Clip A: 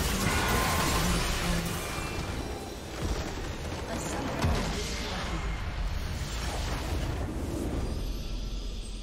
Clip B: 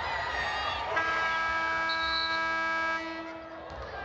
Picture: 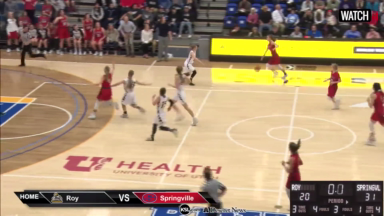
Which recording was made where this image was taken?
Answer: B